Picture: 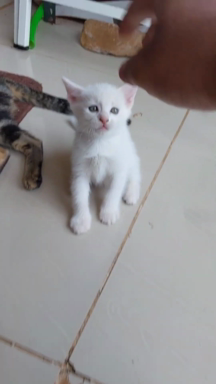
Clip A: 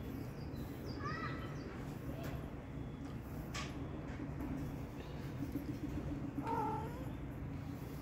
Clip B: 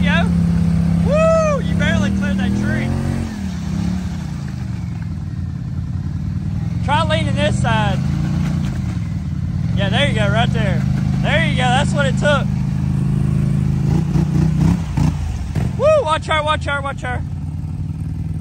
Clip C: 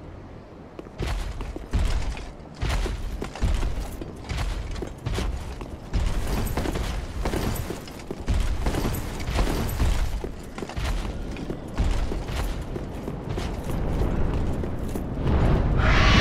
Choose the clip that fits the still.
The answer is A